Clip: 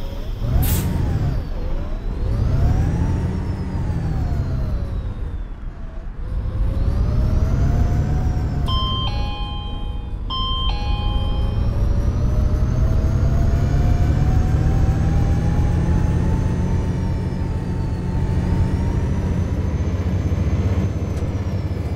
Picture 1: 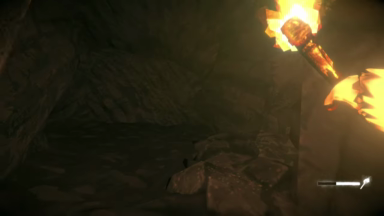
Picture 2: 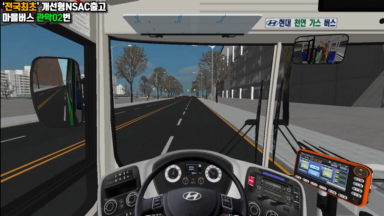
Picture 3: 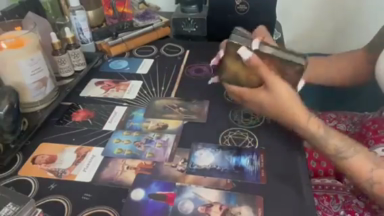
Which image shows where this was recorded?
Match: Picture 2